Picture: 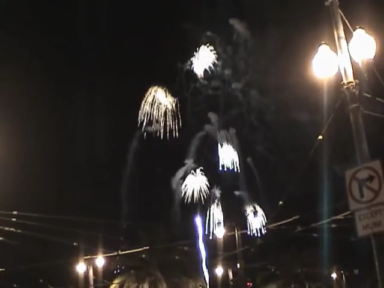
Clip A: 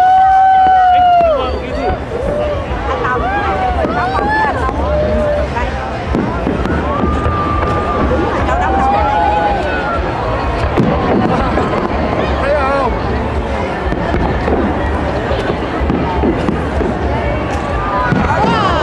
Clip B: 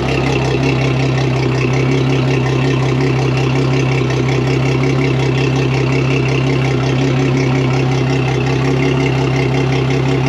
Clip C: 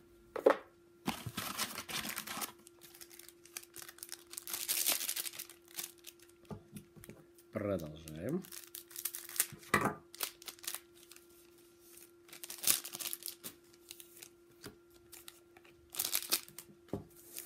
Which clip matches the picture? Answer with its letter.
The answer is A